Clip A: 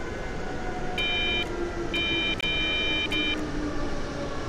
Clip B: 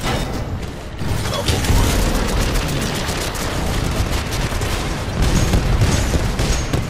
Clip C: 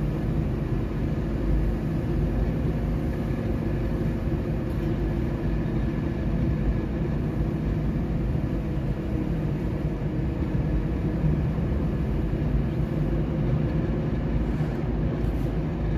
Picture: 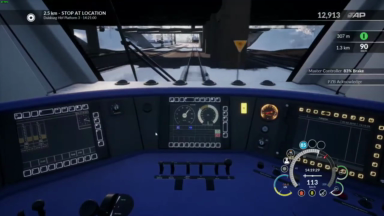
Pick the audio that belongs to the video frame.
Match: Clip A